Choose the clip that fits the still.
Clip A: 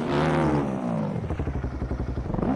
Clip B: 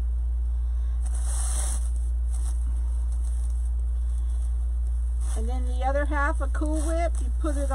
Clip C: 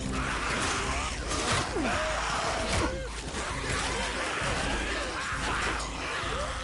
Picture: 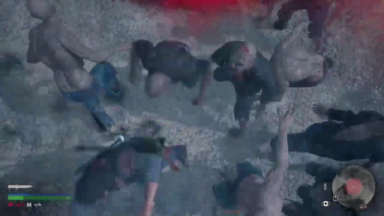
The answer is C